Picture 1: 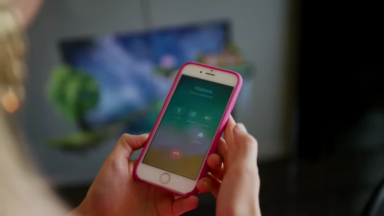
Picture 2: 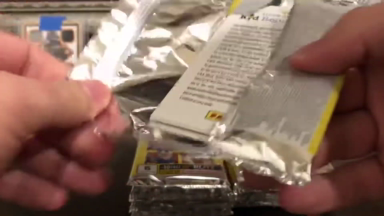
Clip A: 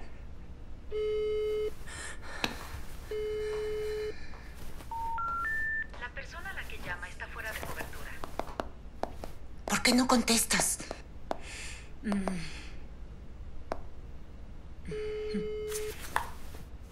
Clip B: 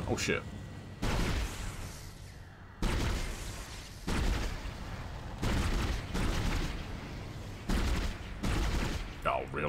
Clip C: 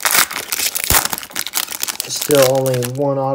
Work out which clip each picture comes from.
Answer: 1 A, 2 C